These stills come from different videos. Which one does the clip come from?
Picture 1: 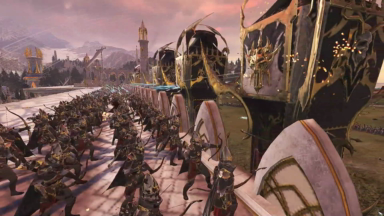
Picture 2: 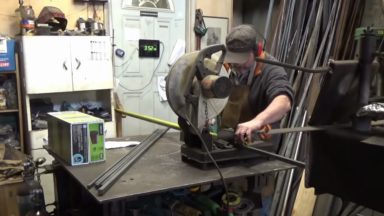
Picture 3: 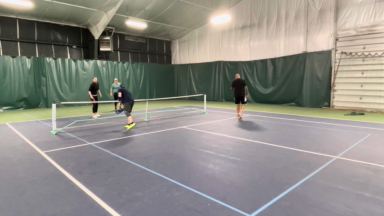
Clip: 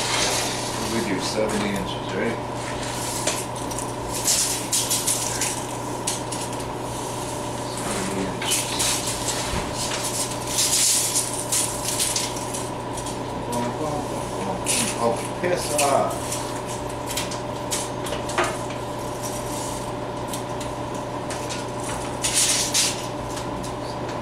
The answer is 2